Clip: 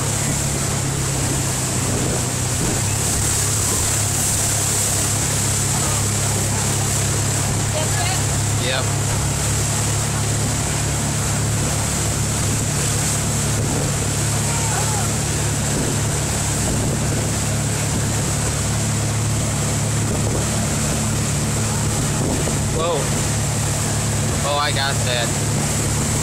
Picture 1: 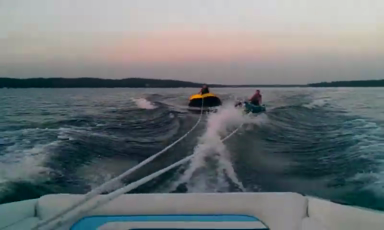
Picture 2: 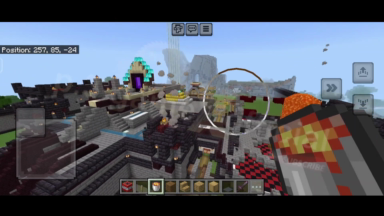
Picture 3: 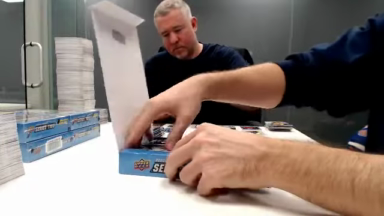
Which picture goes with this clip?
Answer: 1